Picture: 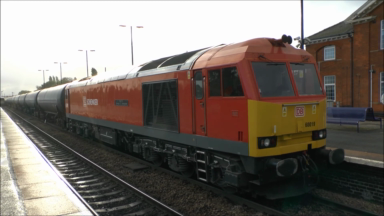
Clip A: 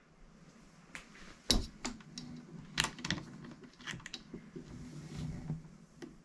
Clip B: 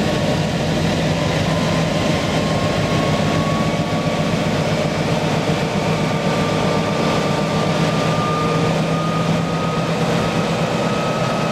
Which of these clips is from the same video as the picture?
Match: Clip B